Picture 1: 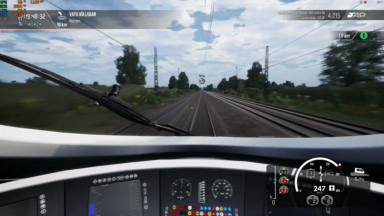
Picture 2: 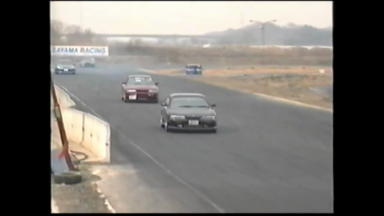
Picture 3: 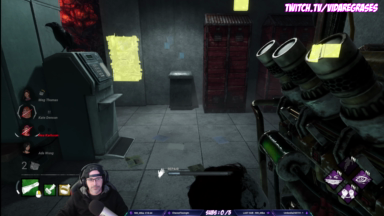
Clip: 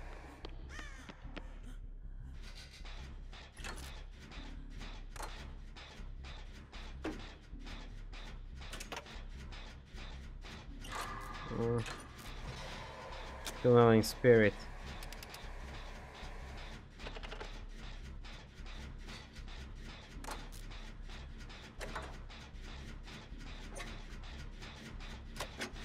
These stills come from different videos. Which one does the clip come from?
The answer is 3